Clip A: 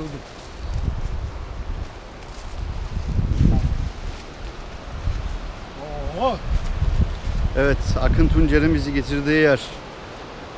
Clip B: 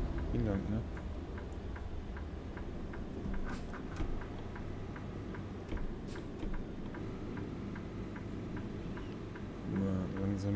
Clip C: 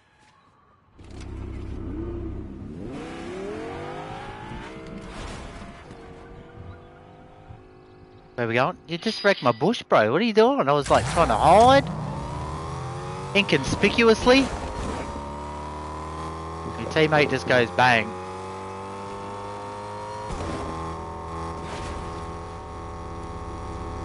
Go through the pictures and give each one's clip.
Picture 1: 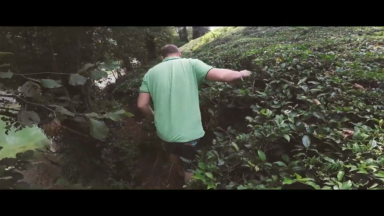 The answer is A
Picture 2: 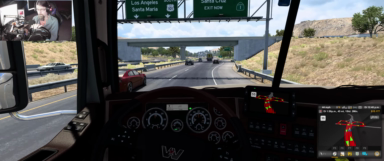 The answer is B